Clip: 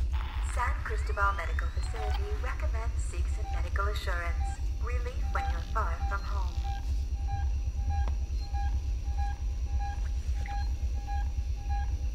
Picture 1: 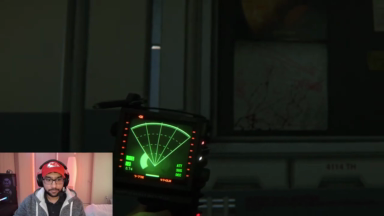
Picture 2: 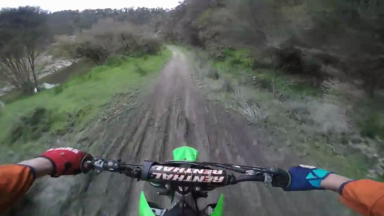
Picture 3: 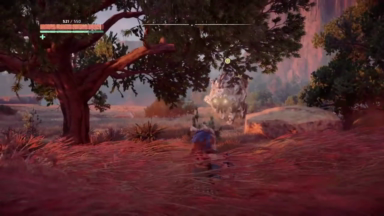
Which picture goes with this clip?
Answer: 1